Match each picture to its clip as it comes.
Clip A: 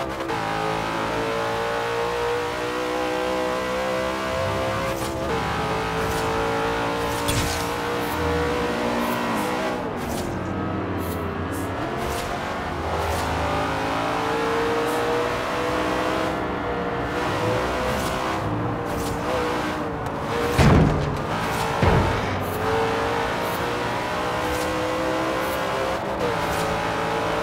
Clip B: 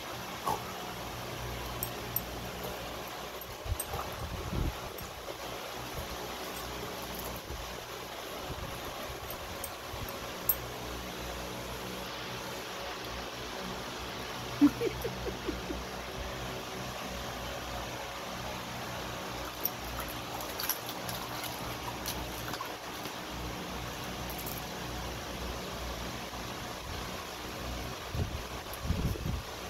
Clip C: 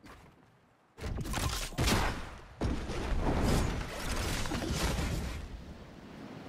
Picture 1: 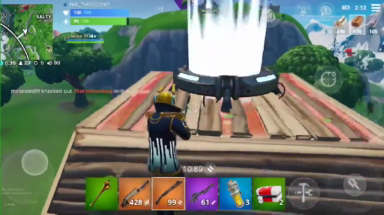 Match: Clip C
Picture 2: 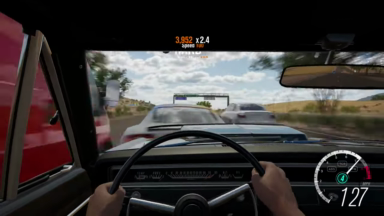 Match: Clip A